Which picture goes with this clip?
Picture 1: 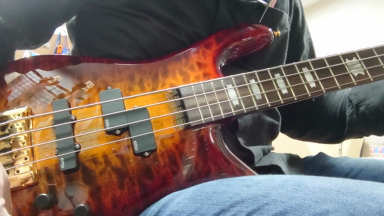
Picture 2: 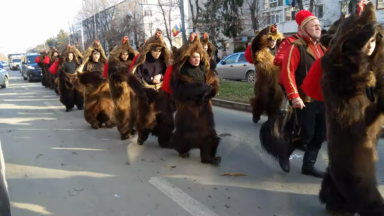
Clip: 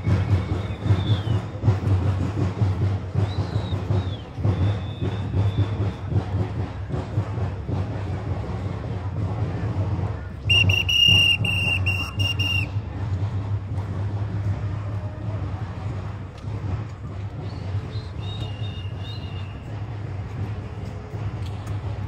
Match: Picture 2